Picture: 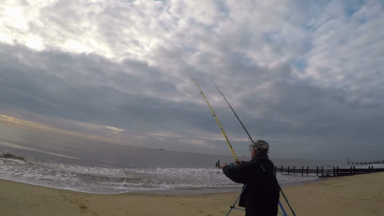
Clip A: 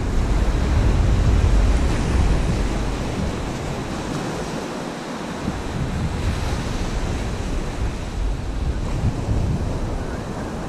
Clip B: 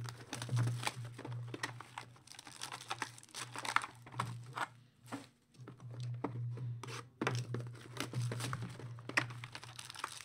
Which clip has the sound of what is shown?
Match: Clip A